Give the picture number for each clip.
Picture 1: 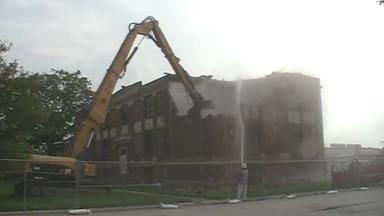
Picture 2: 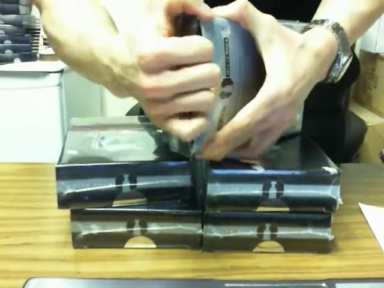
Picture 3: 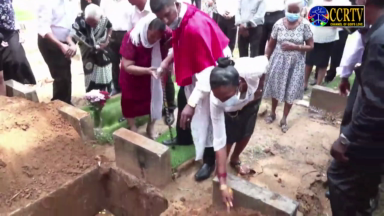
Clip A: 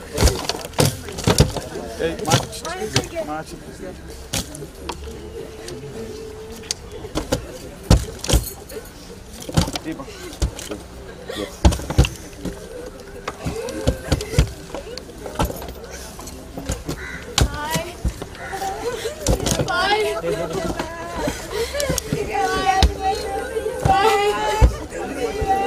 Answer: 3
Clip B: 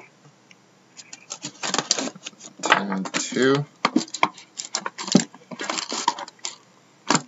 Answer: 2